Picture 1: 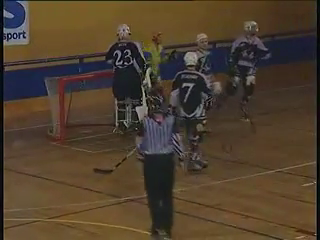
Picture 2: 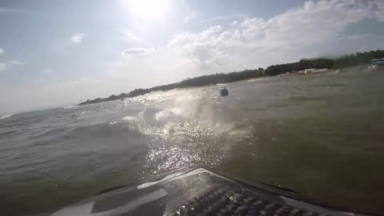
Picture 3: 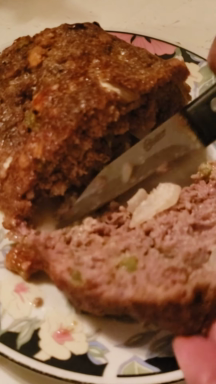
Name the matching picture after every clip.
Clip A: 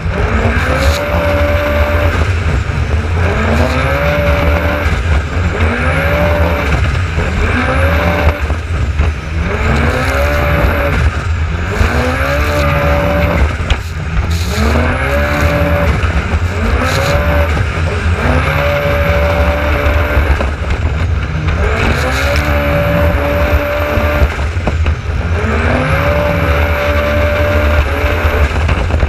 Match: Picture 2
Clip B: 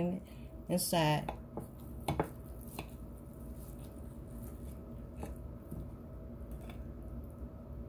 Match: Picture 3